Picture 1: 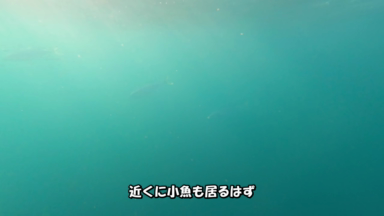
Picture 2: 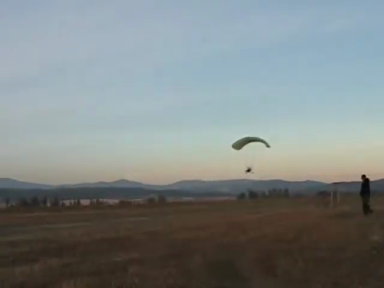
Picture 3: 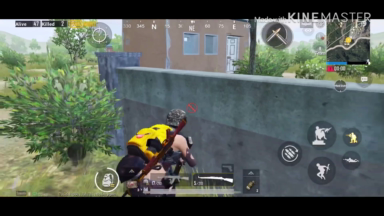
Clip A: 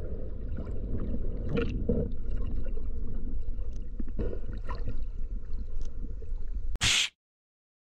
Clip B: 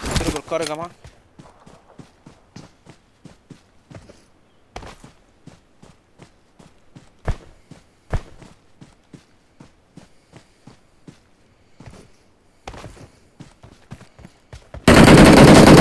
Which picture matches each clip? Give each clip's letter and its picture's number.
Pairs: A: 1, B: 3